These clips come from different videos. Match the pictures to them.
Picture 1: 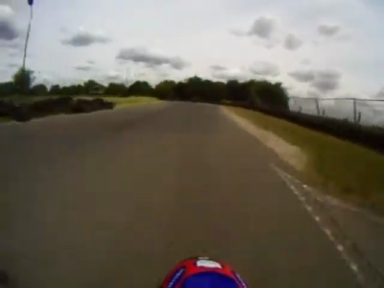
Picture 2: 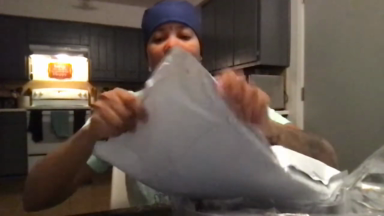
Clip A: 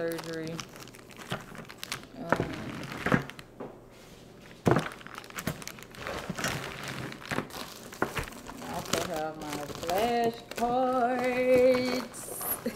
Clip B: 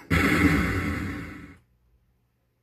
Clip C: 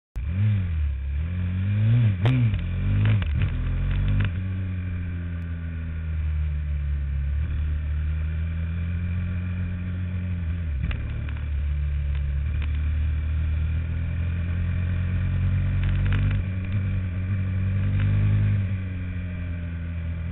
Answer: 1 C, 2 A